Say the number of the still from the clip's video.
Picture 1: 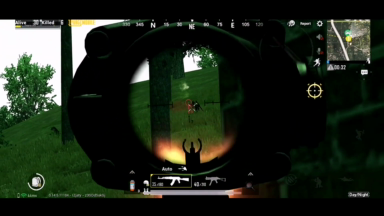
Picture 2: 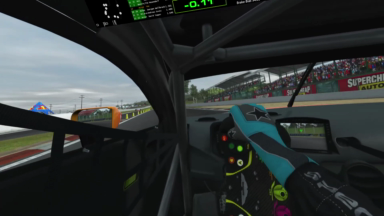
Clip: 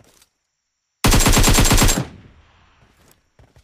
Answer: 1